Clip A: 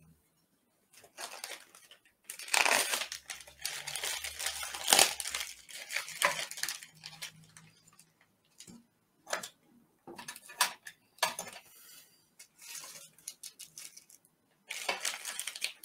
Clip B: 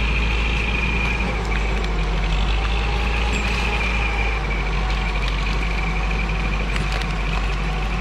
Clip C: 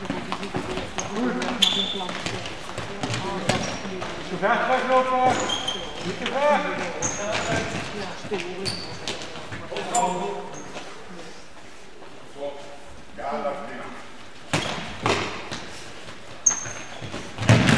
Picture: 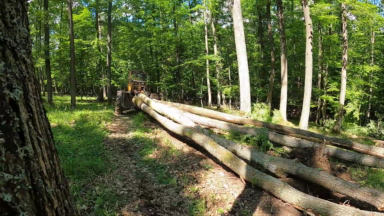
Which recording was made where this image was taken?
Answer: B